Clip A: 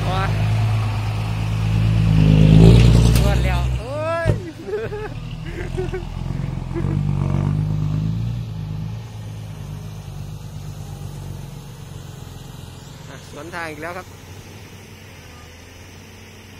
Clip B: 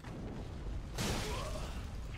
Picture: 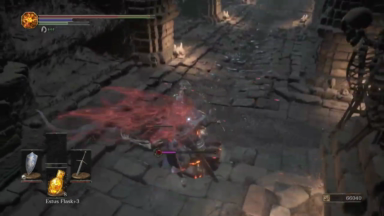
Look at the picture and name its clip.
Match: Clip B